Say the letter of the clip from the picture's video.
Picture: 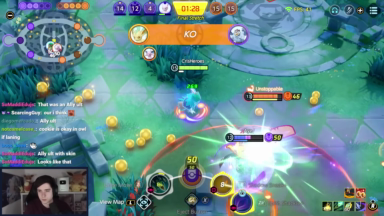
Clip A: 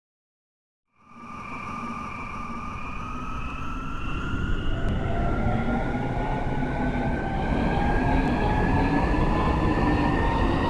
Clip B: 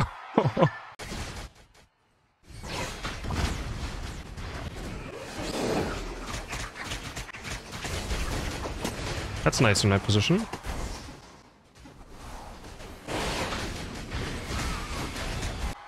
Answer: B